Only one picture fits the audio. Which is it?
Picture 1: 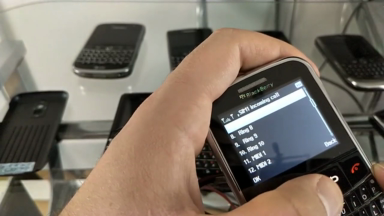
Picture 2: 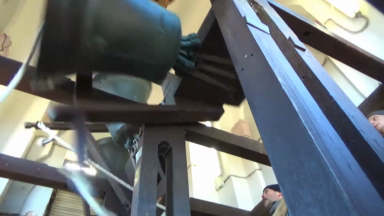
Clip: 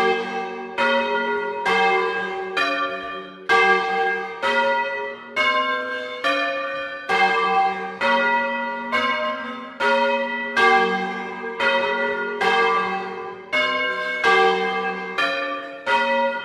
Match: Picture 2